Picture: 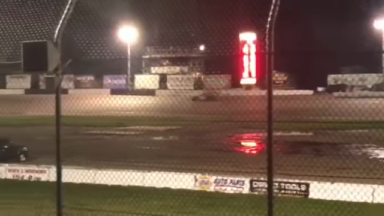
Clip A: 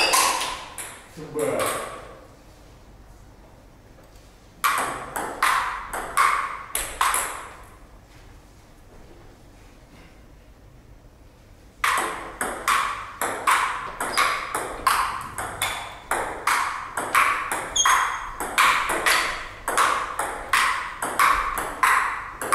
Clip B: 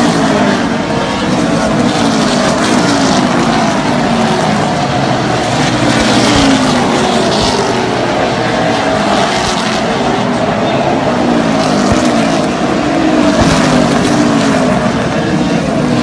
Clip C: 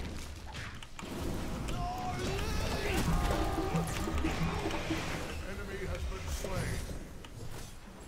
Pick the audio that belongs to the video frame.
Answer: B